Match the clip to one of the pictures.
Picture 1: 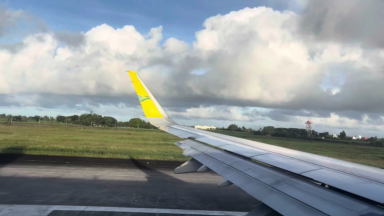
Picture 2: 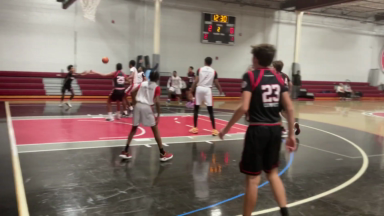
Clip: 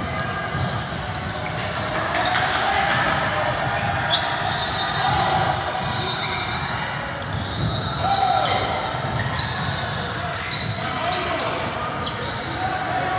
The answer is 2